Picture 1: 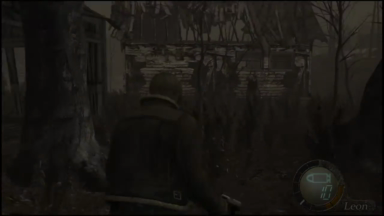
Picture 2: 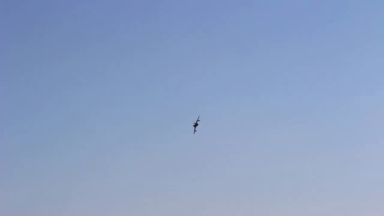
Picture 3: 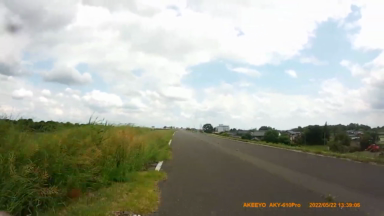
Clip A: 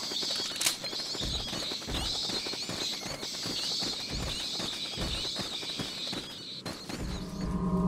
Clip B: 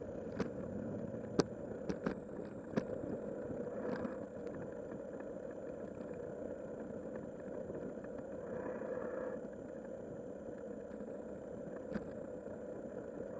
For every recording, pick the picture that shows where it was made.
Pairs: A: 1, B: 3